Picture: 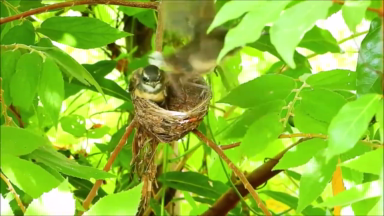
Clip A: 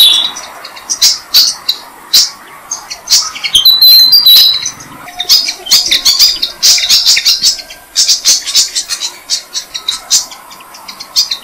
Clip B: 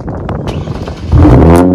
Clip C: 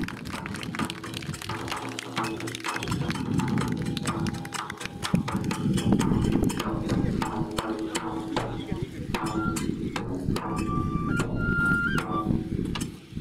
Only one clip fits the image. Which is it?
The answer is A